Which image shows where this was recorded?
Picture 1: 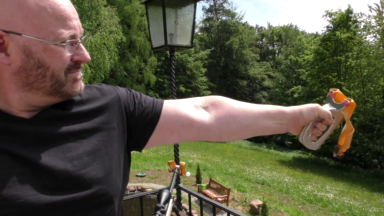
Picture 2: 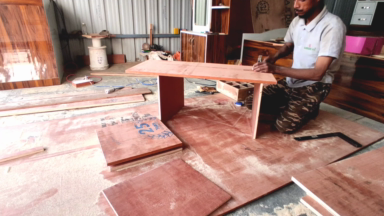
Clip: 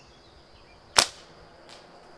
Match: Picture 1